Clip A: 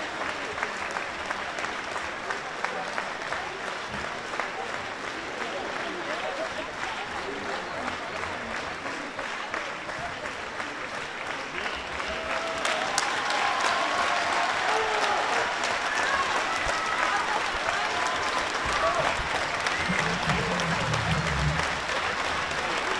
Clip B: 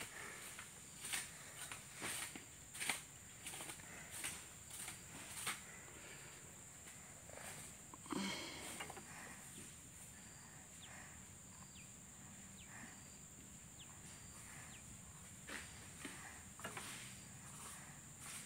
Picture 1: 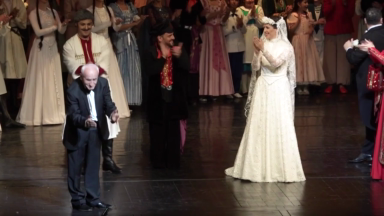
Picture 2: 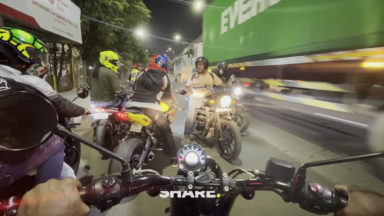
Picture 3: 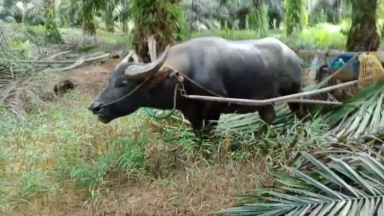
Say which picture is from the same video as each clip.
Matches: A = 1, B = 3